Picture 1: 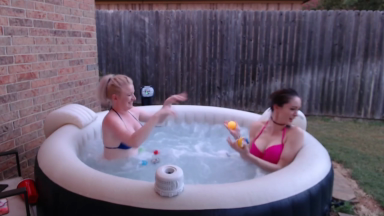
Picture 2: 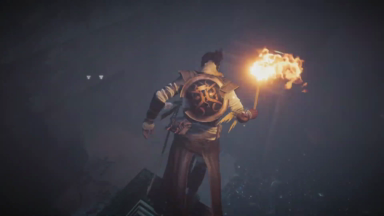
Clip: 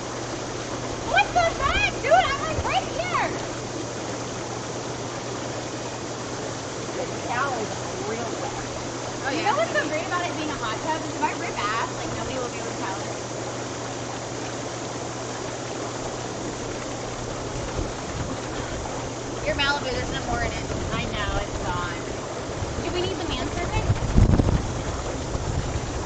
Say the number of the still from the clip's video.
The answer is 1